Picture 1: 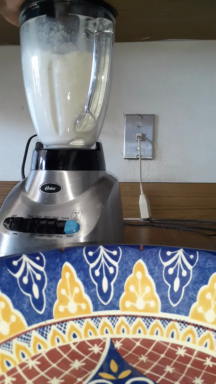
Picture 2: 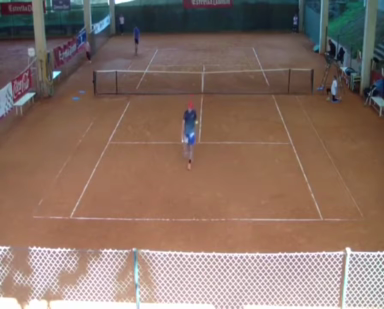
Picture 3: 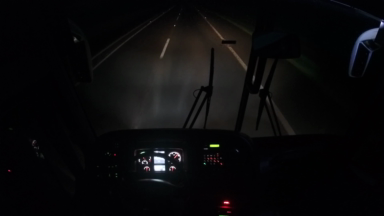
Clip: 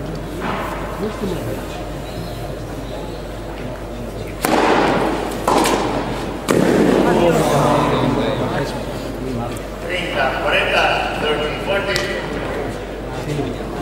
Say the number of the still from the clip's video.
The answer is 2